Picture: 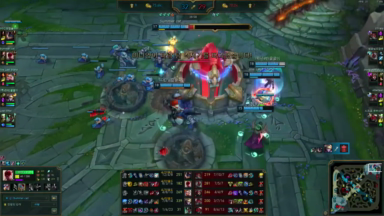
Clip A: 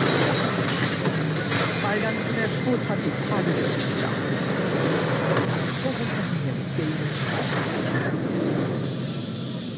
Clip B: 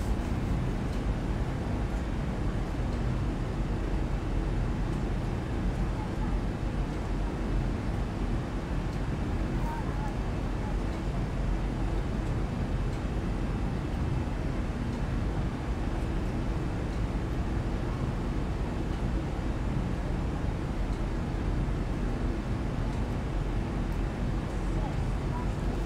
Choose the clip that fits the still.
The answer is A